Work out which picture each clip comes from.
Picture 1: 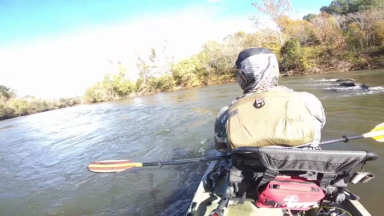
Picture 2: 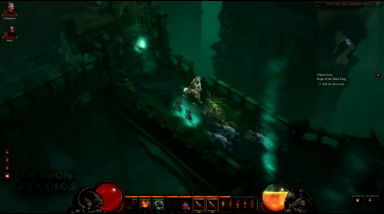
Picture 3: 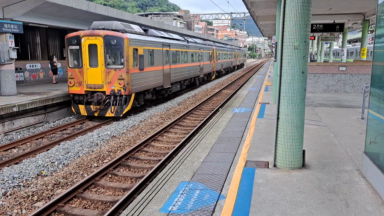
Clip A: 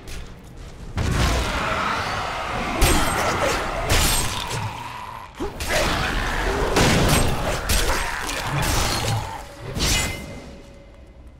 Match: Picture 2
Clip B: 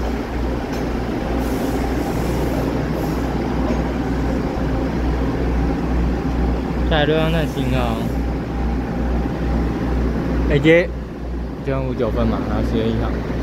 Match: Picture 3